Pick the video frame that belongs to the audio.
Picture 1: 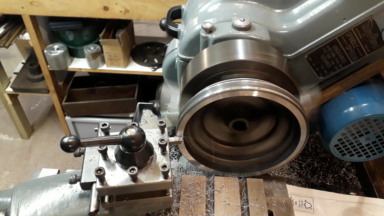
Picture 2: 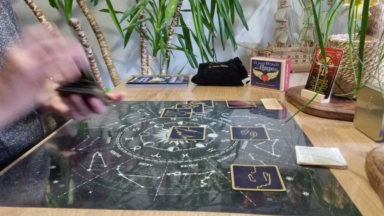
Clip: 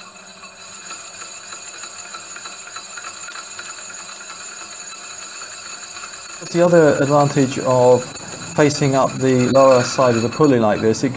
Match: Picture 1